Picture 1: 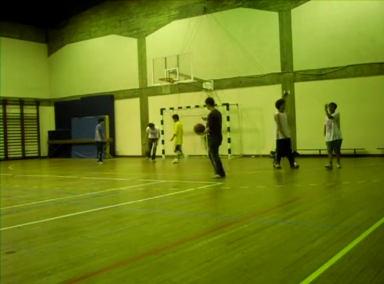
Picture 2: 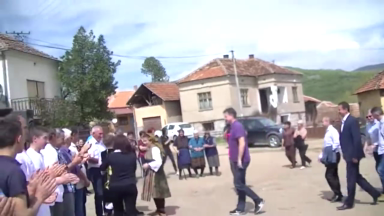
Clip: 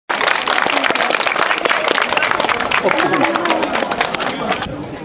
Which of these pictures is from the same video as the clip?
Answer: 2